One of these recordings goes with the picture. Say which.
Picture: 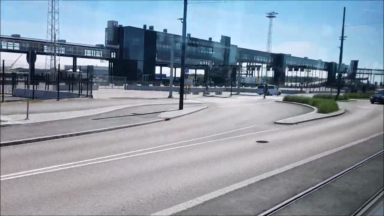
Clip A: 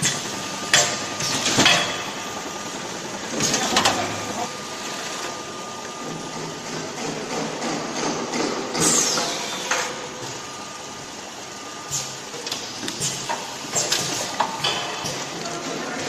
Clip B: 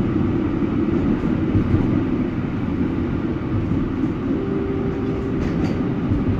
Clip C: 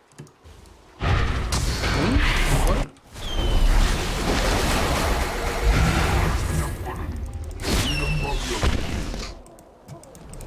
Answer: B